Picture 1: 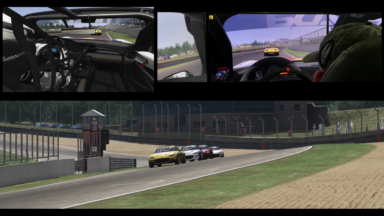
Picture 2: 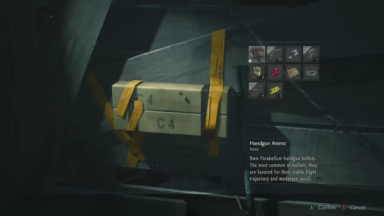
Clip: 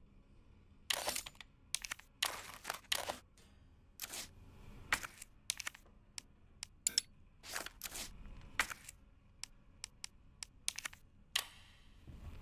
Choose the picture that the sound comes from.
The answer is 2